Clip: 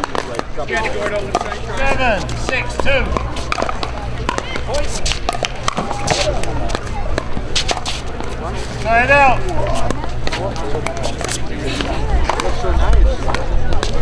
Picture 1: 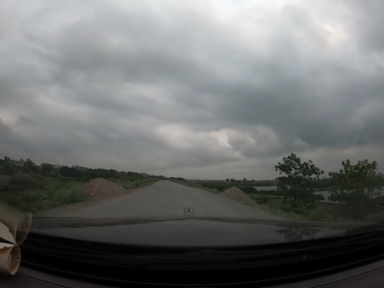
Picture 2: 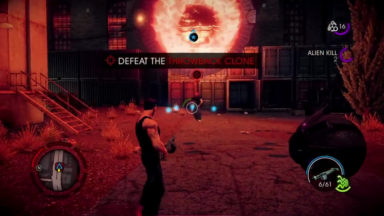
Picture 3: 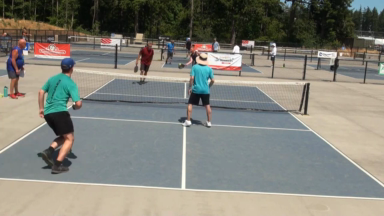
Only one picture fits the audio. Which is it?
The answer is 3